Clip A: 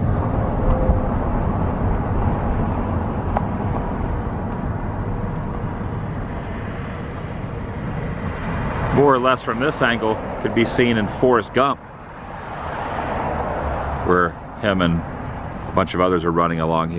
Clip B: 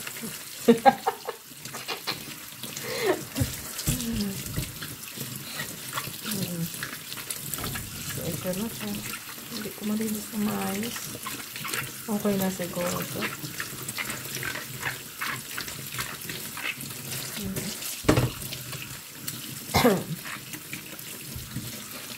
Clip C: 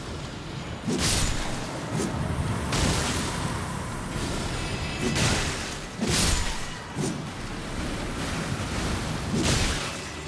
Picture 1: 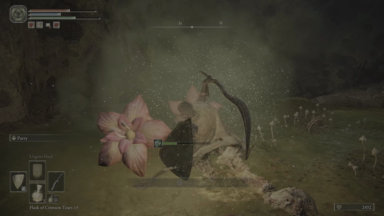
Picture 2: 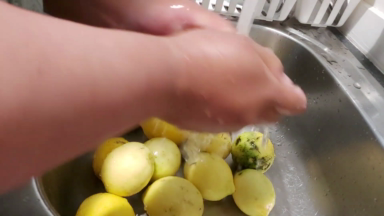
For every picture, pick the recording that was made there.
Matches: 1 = C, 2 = B